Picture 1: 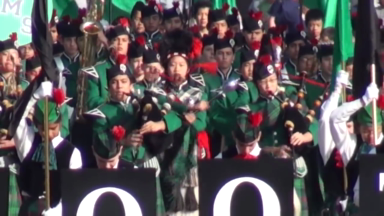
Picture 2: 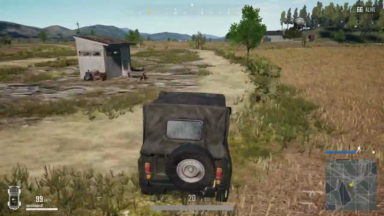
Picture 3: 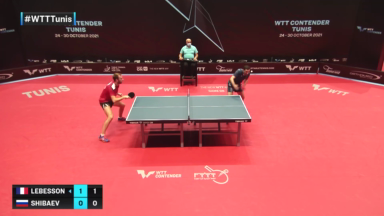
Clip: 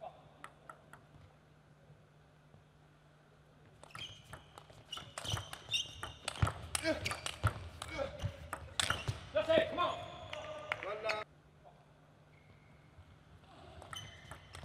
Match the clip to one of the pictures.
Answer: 3